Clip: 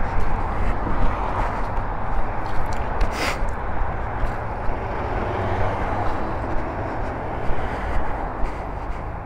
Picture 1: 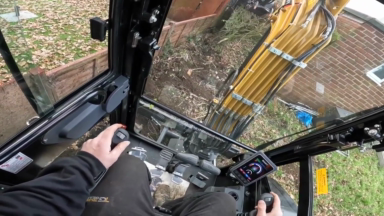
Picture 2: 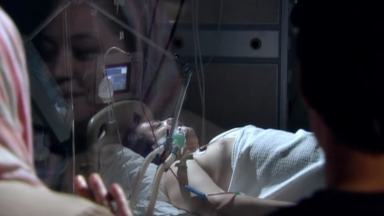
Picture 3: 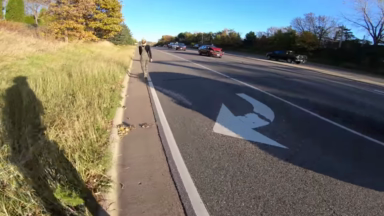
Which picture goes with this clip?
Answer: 3